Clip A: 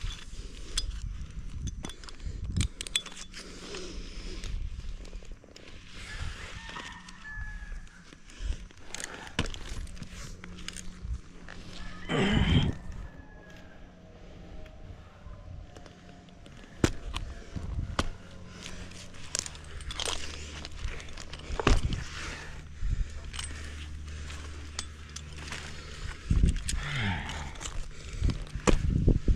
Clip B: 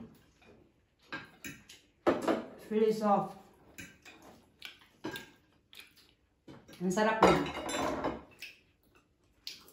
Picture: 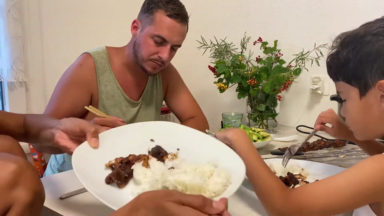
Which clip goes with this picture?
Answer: B